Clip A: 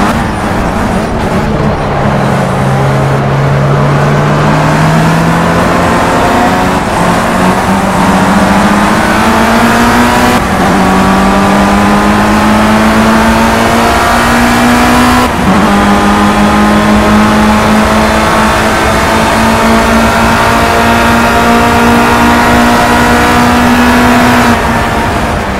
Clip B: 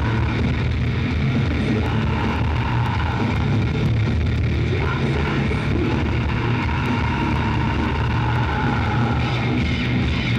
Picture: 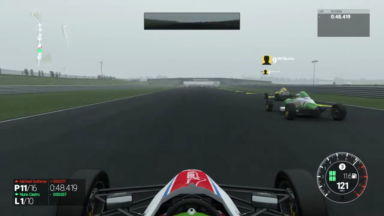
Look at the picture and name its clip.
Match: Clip A